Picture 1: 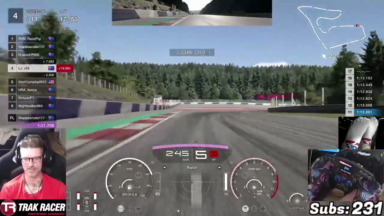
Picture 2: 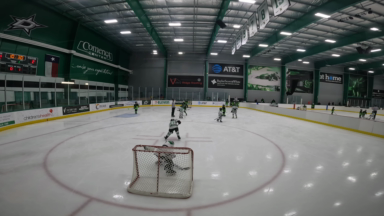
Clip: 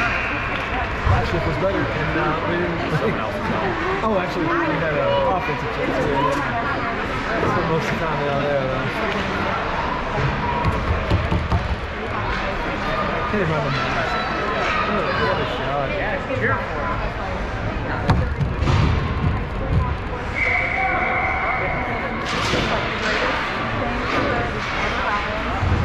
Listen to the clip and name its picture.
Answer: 2